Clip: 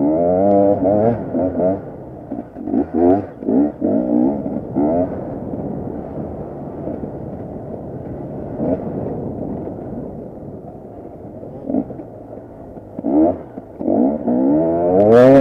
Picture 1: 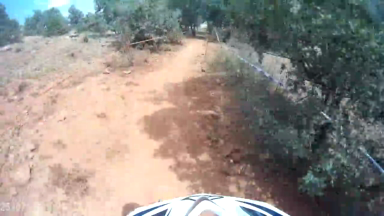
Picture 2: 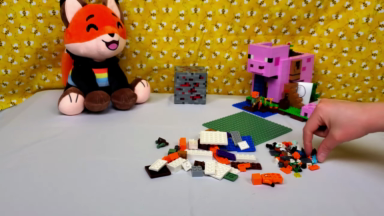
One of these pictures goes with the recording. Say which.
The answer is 1